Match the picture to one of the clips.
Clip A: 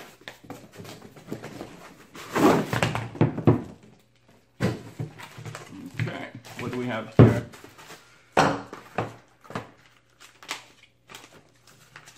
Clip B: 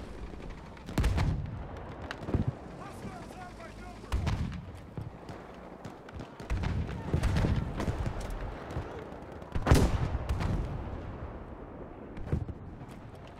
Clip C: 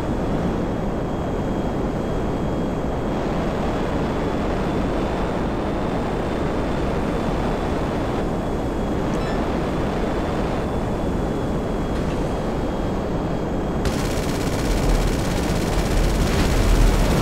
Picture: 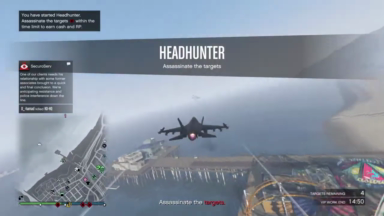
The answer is C